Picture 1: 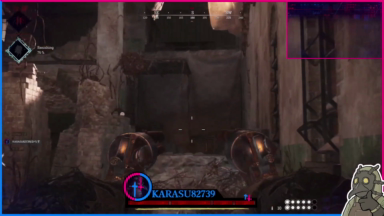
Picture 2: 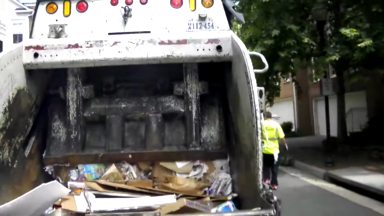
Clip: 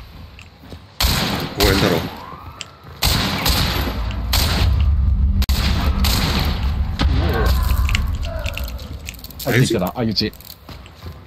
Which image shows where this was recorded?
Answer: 1